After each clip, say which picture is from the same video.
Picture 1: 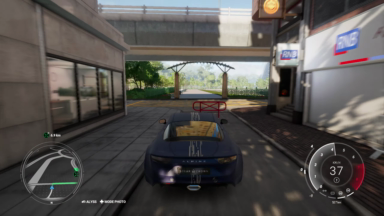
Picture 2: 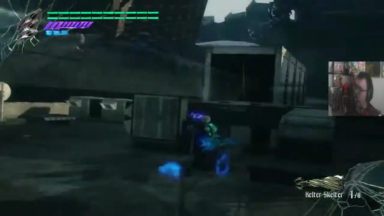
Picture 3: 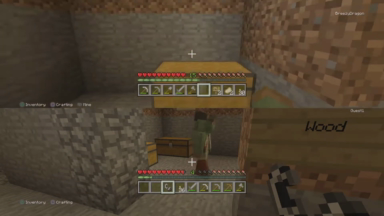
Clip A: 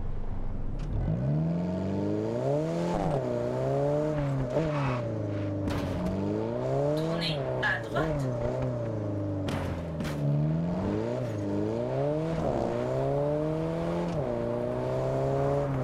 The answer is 1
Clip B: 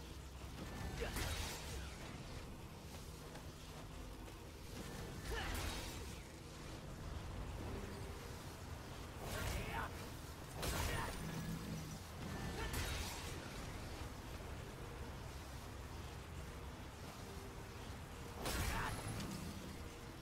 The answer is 2